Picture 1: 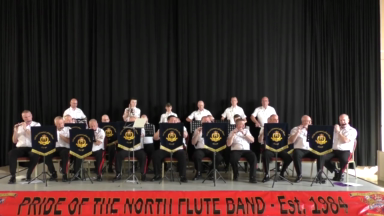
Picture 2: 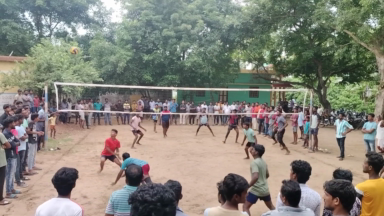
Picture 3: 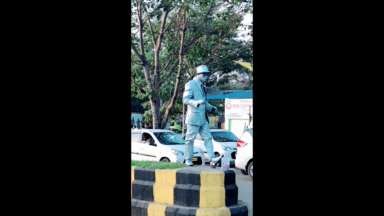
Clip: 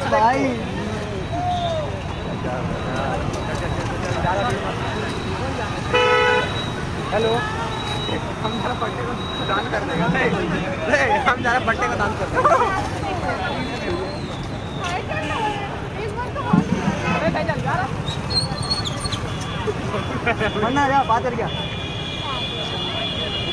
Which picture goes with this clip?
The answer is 3